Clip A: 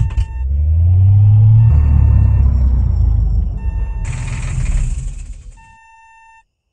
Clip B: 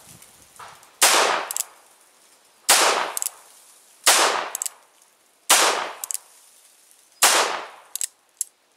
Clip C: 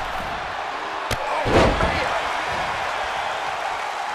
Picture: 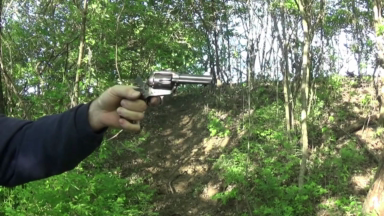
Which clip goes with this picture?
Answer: B